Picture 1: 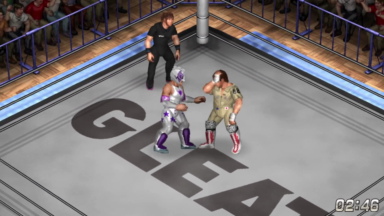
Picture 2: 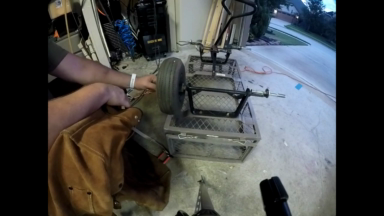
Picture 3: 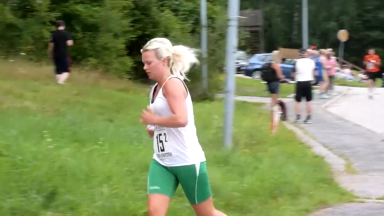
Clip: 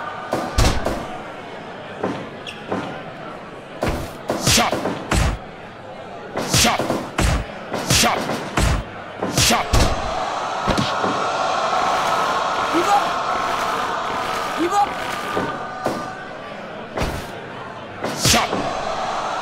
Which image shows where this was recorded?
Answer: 1